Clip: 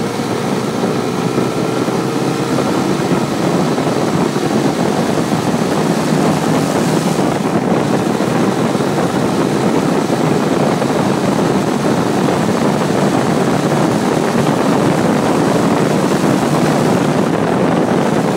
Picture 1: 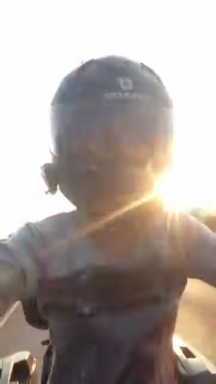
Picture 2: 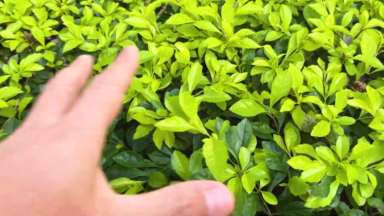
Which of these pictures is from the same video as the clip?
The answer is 1